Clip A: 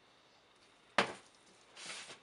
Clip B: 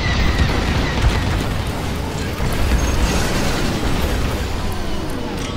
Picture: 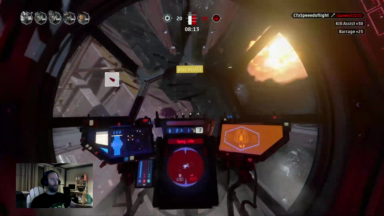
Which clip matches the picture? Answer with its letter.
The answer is B